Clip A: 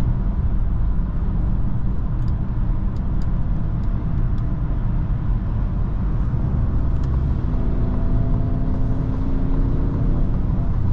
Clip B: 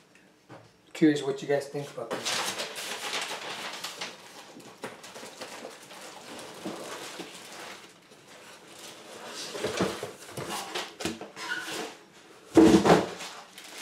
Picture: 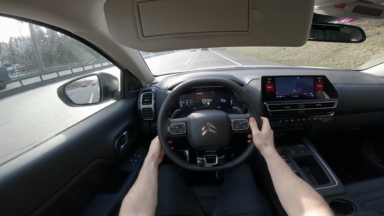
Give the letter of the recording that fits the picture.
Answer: A